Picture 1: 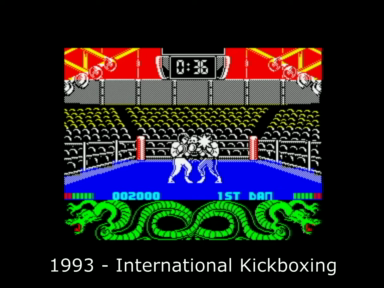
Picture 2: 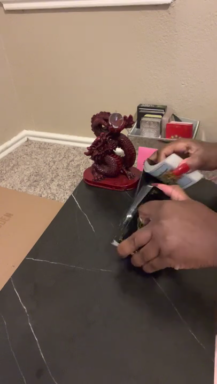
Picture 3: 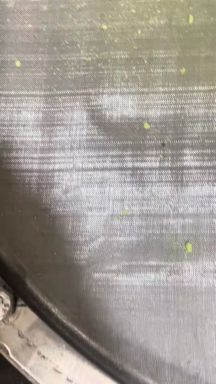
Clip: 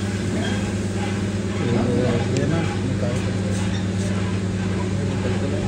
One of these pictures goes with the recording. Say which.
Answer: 3